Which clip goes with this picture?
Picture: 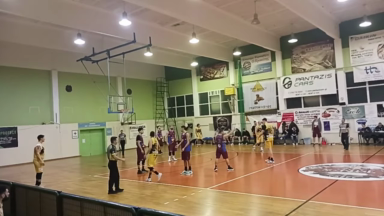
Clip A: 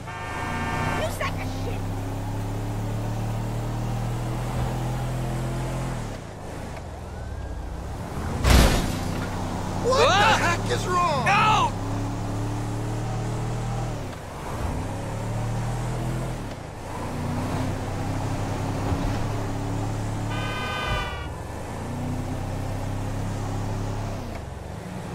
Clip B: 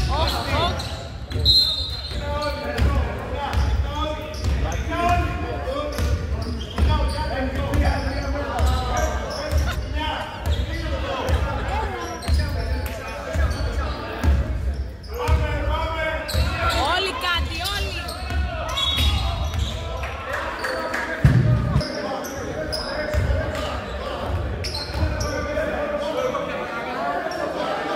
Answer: B